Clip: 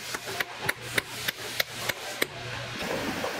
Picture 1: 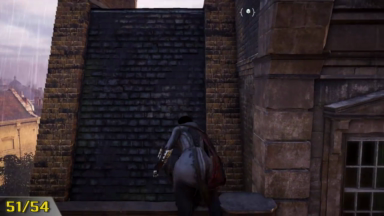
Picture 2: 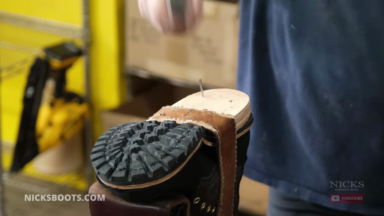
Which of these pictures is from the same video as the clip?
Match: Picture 2